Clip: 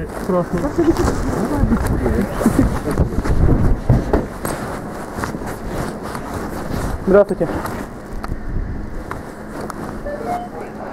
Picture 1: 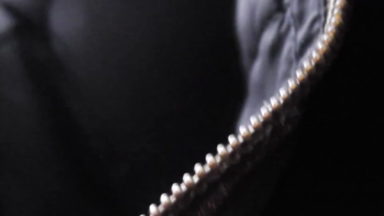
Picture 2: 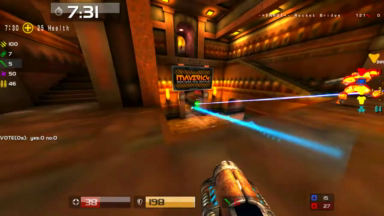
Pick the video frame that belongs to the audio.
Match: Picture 1